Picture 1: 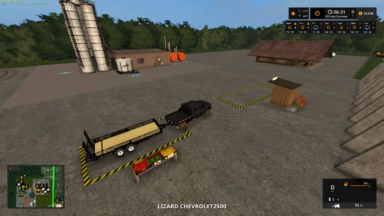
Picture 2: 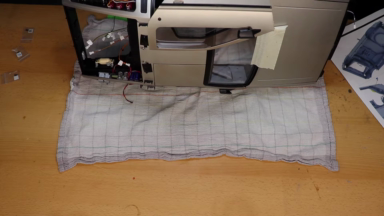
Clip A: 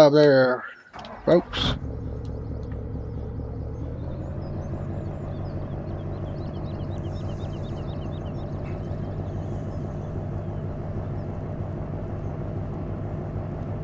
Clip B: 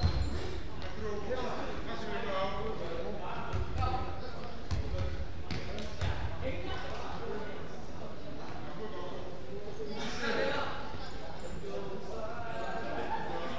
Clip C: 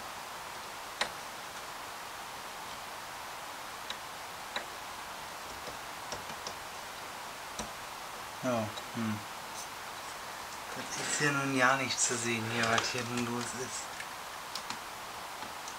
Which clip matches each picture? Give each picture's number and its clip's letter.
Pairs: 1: A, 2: C